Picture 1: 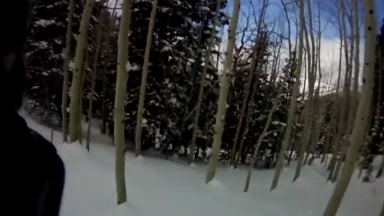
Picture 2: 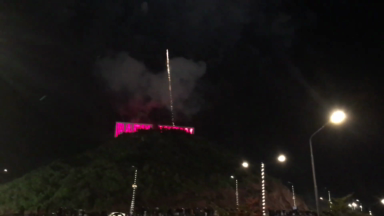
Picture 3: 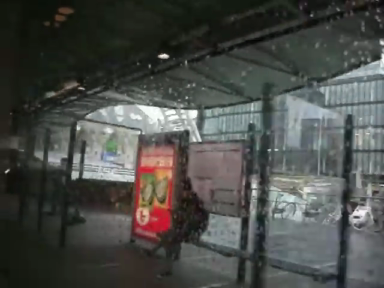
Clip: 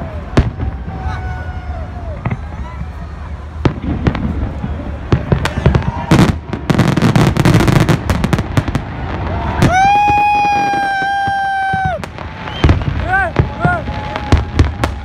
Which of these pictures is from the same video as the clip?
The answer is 2